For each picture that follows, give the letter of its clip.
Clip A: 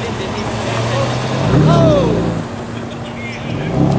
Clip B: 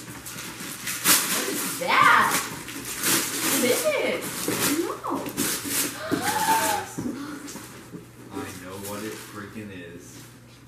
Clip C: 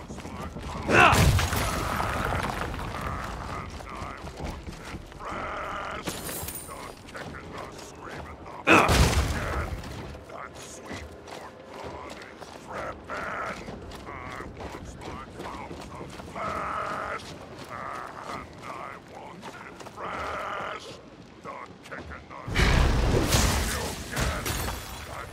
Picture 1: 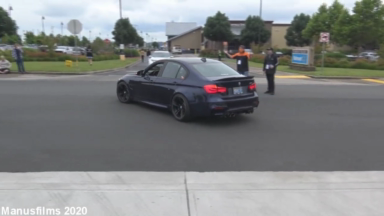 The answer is A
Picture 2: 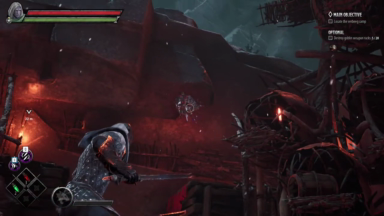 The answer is C